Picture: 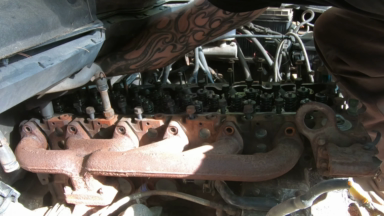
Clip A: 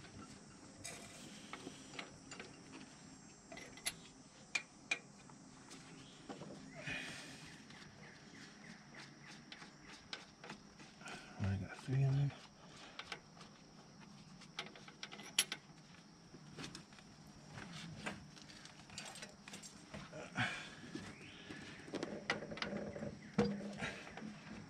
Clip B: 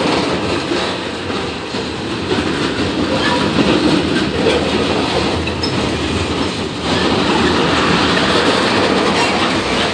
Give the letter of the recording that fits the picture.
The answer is A